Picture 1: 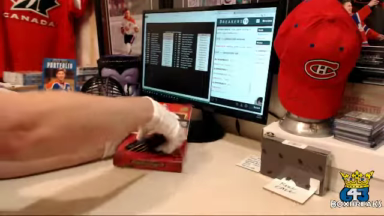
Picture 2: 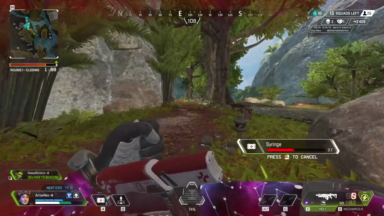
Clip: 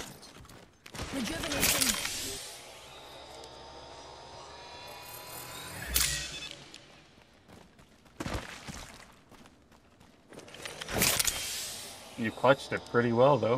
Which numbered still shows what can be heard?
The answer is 2